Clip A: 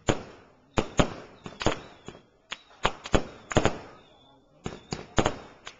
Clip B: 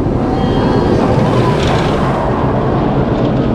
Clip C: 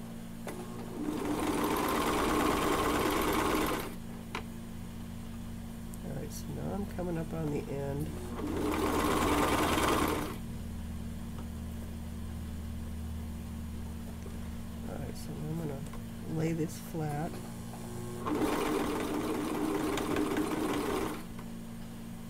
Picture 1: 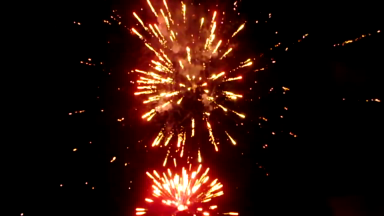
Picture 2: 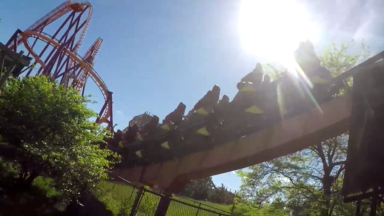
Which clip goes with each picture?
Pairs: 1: A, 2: B